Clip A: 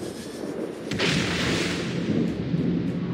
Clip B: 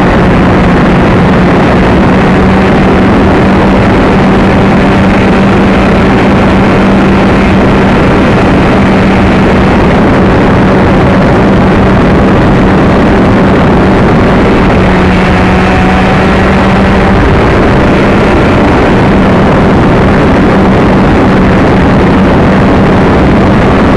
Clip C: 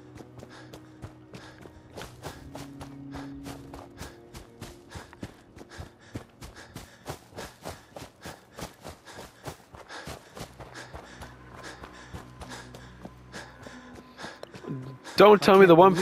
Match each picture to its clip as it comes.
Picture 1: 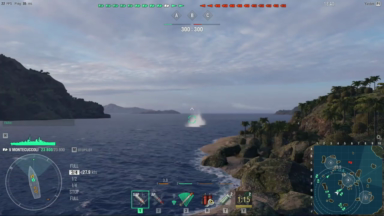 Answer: A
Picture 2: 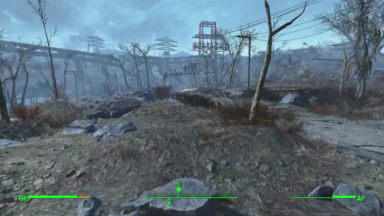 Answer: C